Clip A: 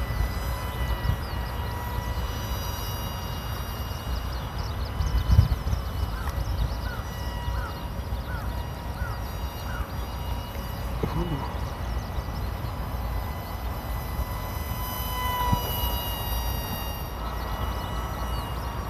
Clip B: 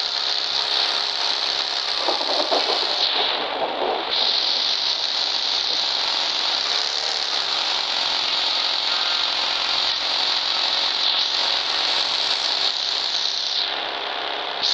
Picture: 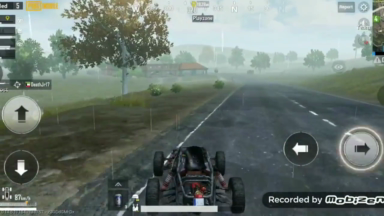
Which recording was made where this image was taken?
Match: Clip B